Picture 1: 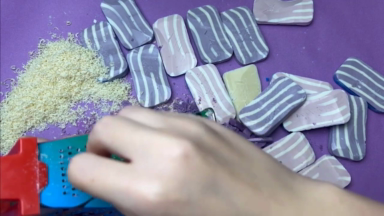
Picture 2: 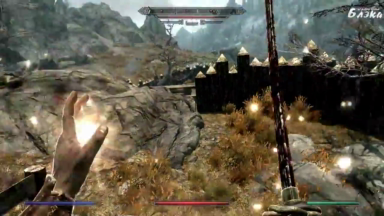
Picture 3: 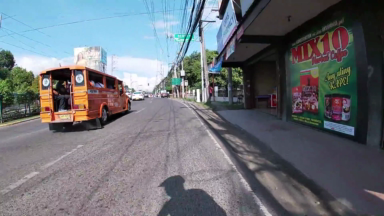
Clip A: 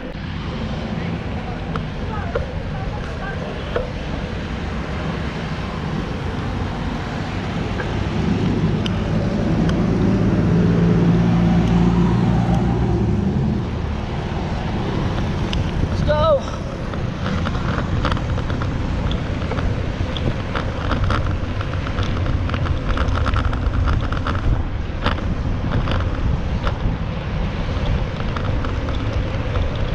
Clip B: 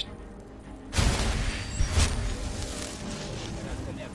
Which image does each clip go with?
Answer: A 3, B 2